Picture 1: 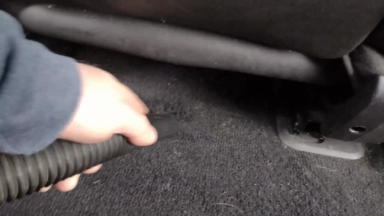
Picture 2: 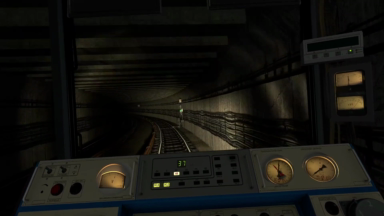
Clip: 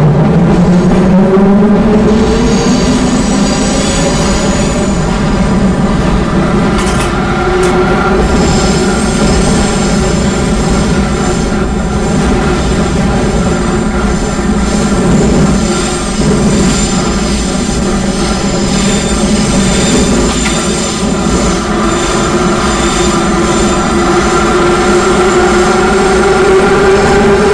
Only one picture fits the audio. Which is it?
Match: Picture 2